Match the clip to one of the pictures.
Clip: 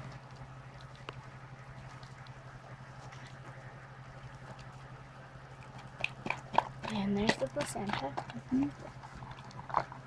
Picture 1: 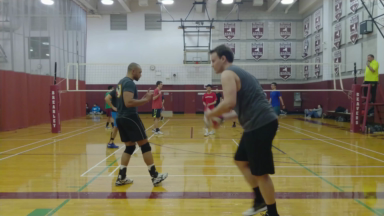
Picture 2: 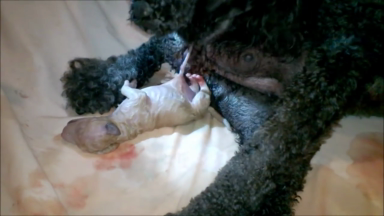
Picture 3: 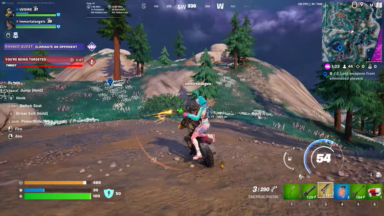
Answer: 2